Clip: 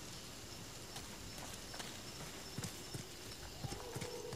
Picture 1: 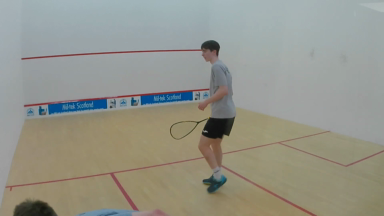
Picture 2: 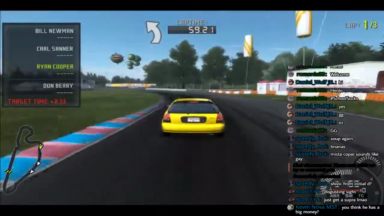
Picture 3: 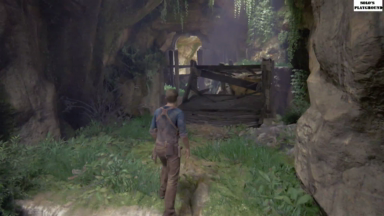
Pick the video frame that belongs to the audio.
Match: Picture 3